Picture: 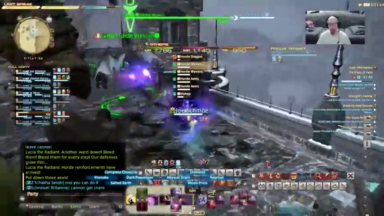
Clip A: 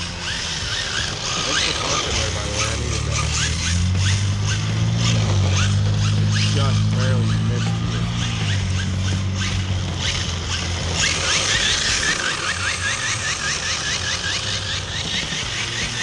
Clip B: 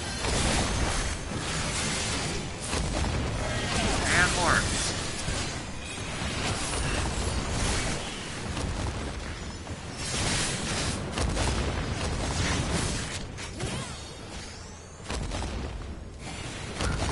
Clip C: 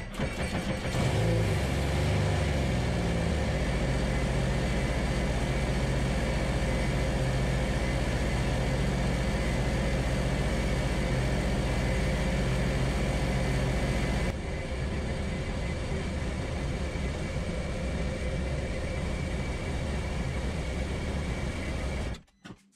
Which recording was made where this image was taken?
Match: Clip B